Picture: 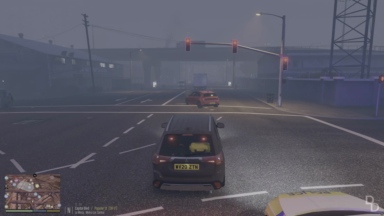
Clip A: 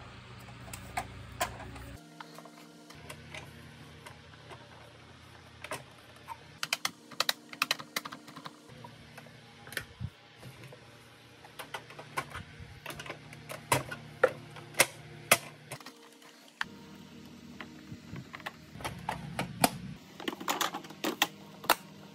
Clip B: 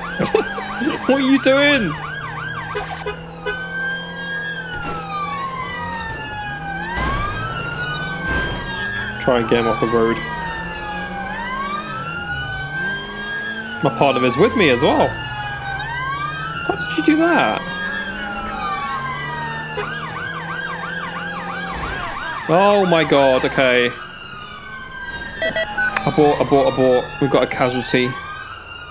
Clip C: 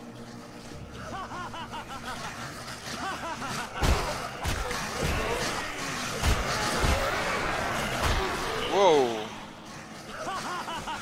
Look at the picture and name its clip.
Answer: B